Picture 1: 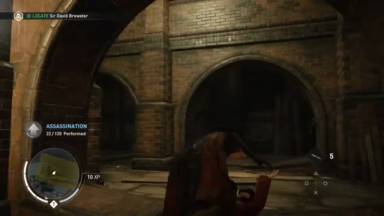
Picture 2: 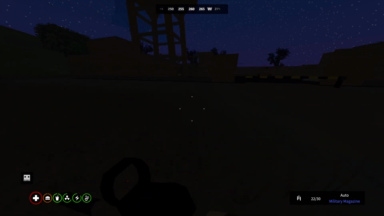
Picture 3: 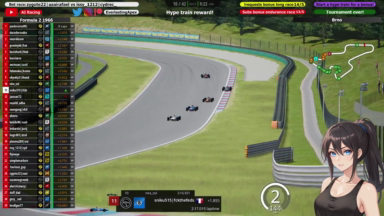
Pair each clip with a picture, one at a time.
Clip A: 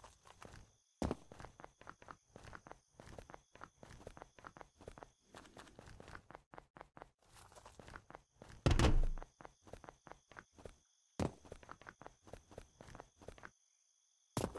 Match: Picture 2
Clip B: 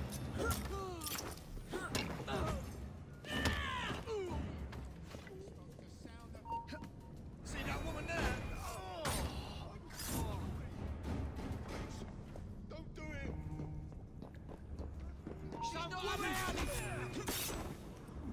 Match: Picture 1